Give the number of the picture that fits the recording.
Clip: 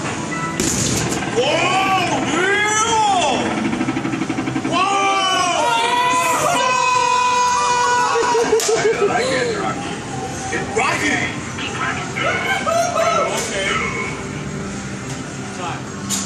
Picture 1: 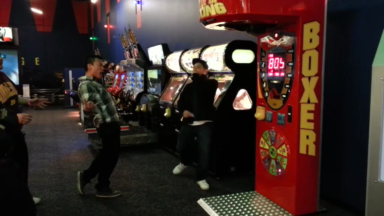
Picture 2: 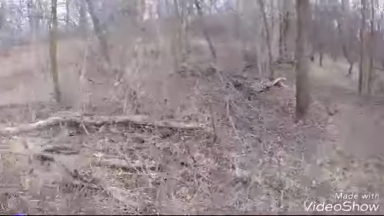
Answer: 1